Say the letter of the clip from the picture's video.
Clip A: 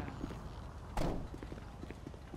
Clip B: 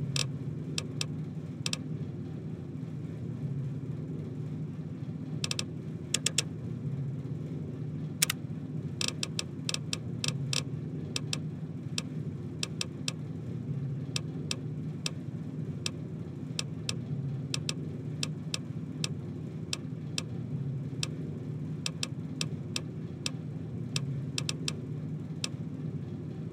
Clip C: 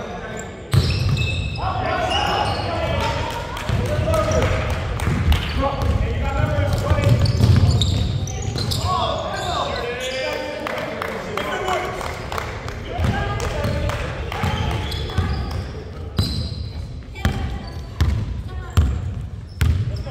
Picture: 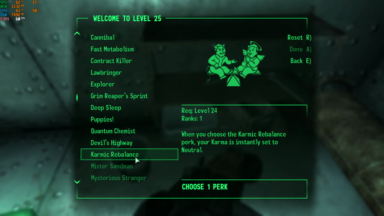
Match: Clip B